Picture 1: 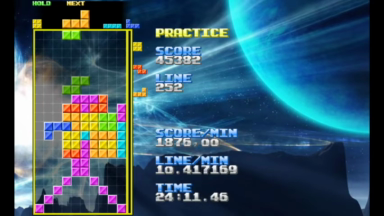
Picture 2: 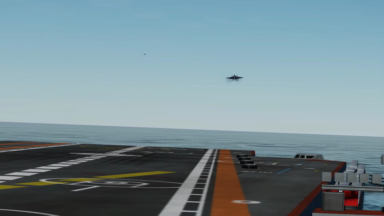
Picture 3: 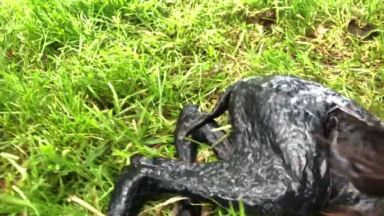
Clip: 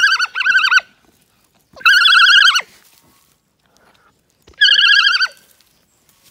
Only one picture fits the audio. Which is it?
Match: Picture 3